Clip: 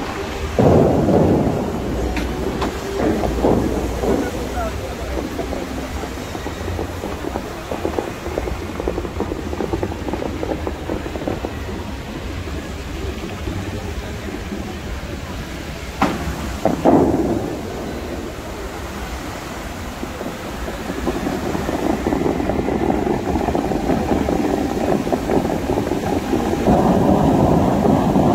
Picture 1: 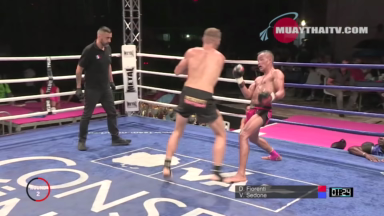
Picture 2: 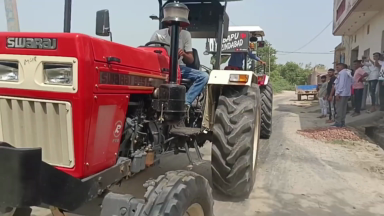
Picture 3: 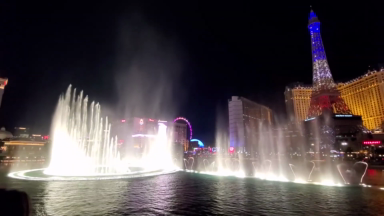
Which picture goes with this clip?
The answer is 3